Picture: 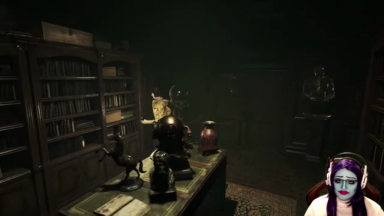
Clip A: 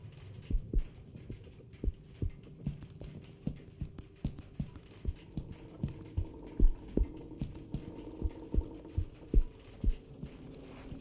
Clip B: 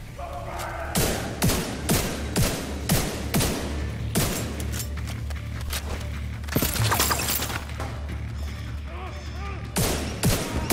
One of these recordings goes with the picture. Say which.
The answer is A